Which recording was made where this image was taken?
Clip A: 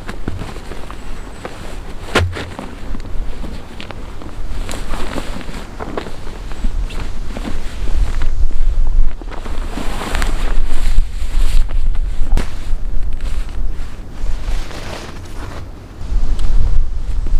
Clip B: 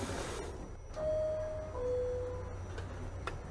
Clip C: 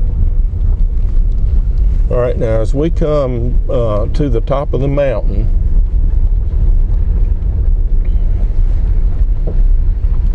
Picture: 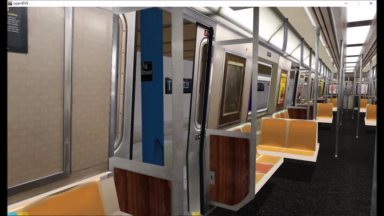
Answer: B